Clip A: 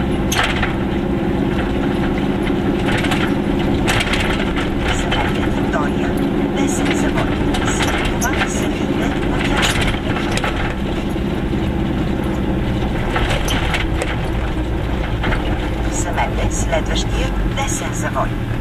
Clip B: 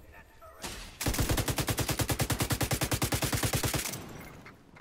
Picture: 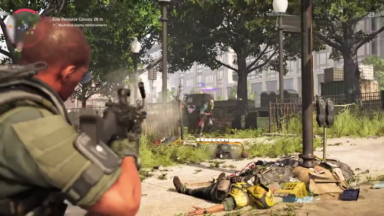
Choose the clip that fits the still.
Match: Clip B